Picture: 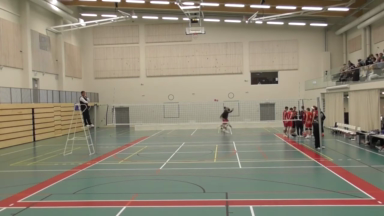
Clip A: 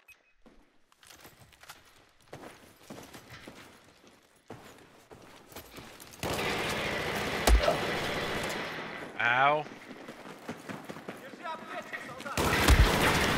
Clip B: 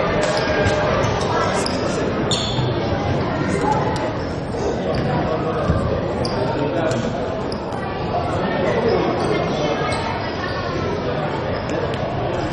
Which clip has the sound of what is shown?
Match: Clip B